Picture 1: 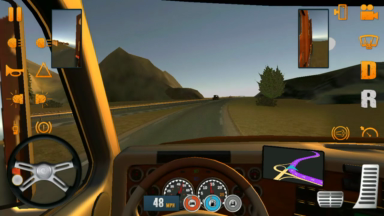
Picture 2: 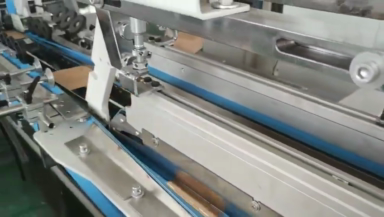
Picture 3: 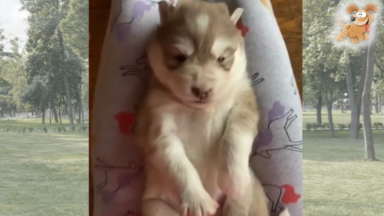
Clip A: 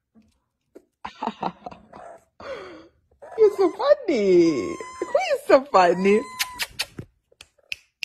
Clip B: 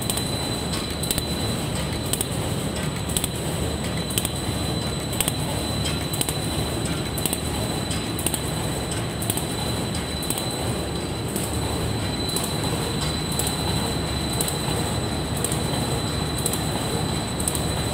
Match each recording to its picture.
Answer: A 3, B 2